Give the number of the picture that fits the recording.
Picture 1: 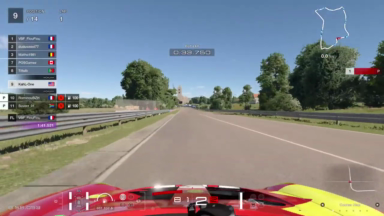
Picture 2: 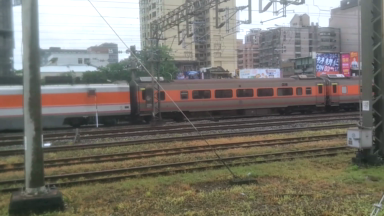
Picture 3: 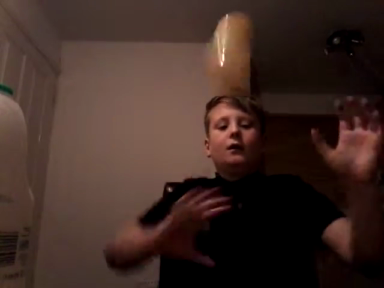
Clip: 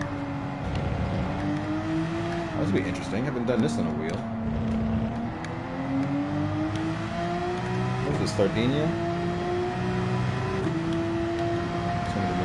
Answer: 1